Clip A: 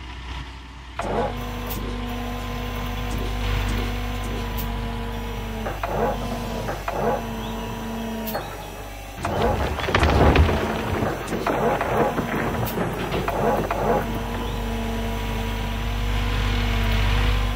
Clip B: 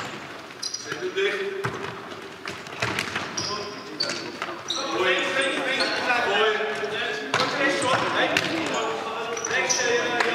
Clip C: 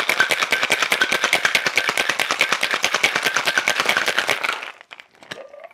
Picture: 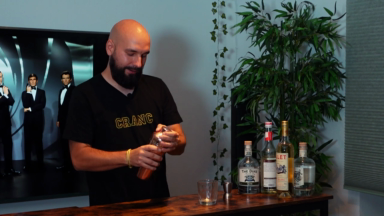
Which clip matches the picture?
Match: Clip C